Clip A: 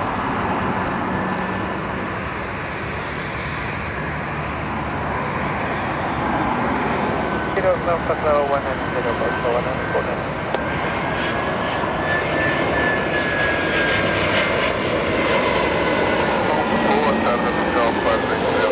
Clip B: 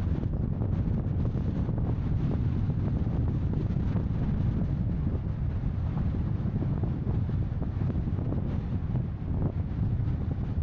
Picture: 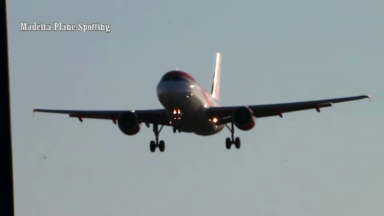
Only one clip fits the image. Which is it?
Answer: A